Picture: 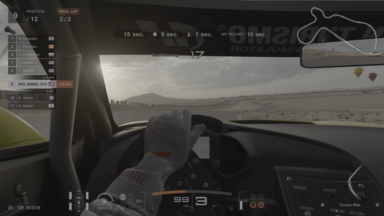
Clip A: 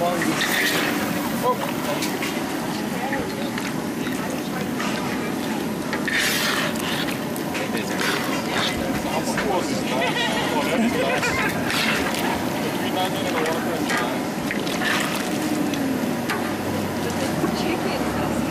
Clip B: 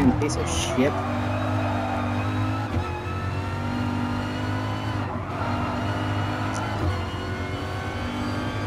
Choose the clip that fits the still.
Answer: B